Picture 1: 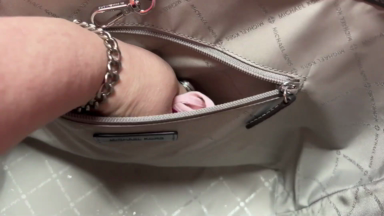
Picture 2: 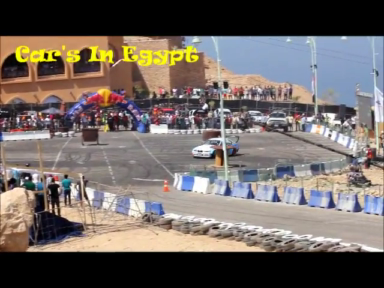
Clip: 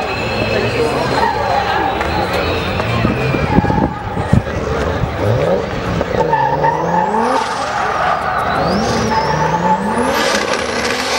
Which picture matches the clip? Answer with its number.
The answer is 2